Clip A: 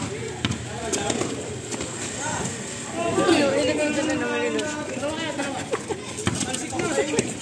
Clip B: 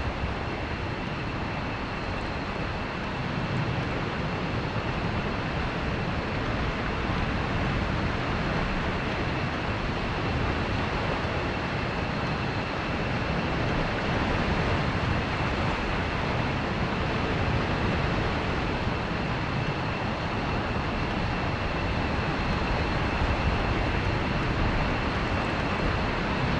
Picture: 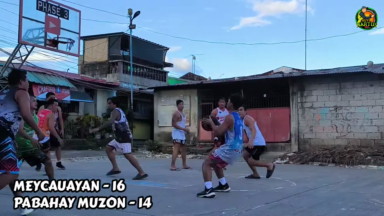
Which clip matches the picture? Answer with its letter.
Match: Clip A